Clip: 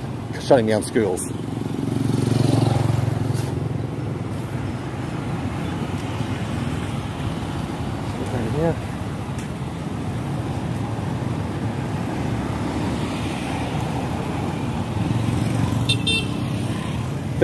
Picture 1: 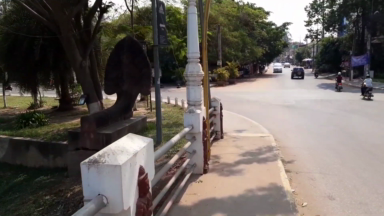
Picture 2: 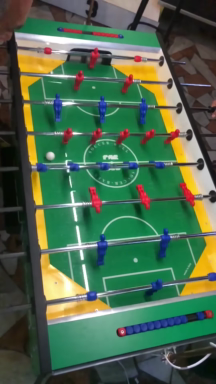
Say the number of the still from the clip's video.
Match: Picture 1